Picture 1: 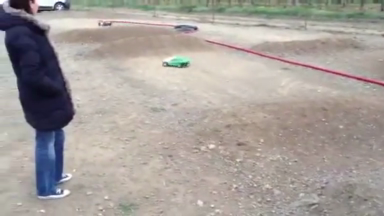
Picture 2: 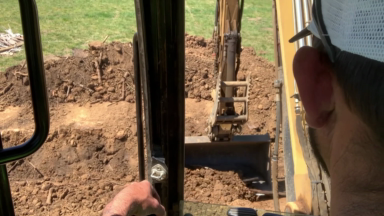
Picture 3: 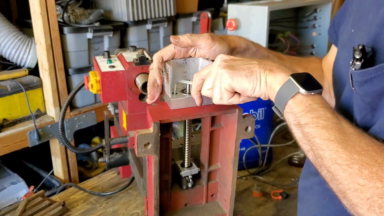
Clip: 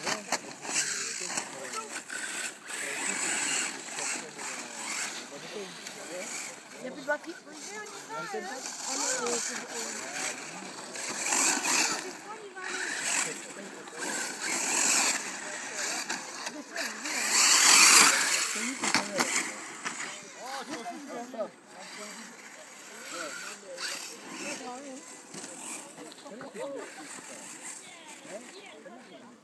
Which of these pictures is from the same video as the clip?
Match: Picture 1